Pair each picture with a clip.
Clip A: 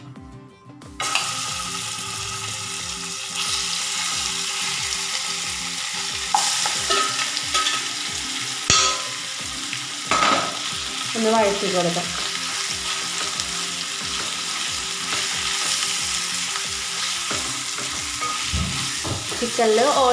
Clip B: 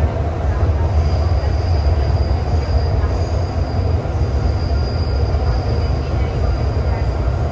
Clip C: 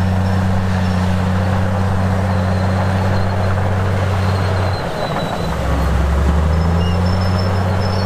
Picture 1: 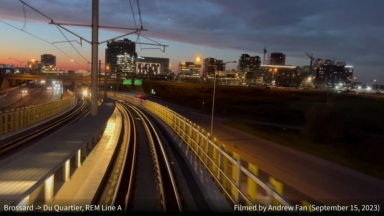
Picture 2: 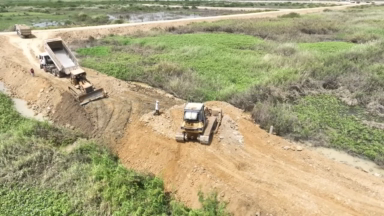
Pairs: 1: B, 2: C